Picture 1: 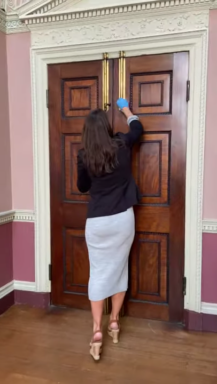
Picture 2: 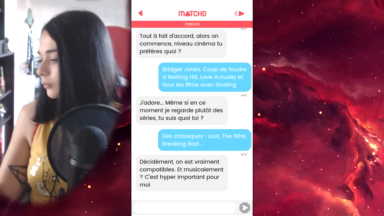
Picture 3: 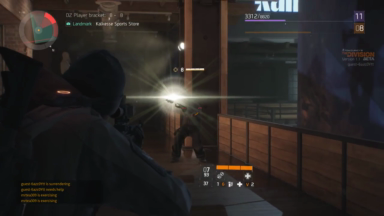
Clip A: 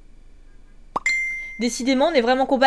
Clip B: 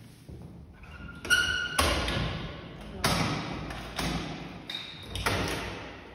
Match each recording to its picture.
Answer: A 2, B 1